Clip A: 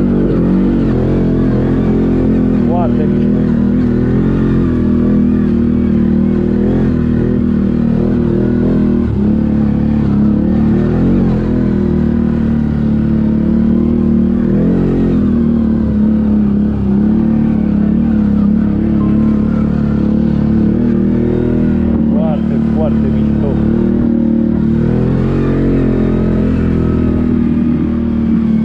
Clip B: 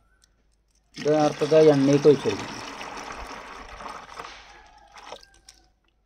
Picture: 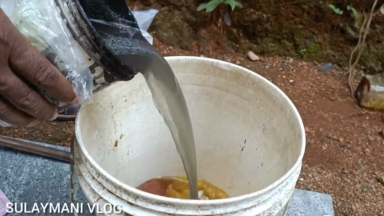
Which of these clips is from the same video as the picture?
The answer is B